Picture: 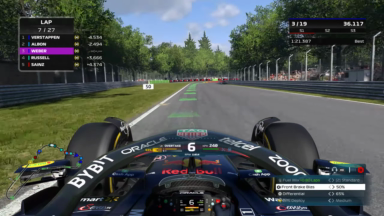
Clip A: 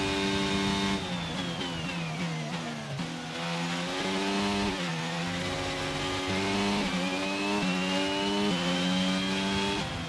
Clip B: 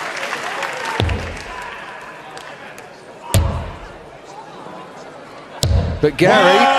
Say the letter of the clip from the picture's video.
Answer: A